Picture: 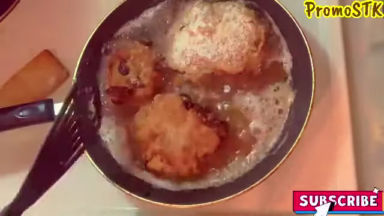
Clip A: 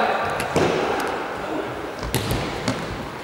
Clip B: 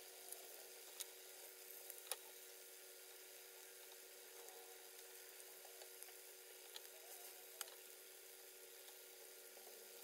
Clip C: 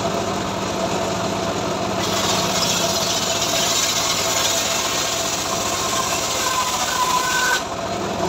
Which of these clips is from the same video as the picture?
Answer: B